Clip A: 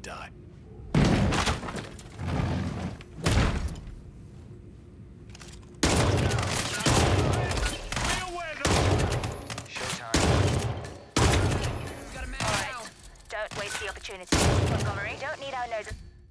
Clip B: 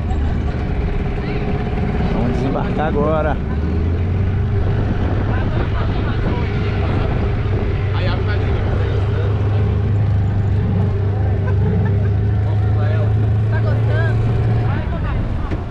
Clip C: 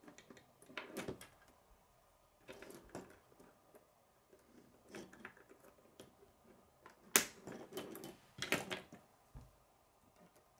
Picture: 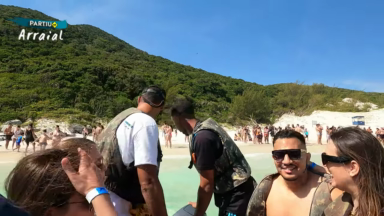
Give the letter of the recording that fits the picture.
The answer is B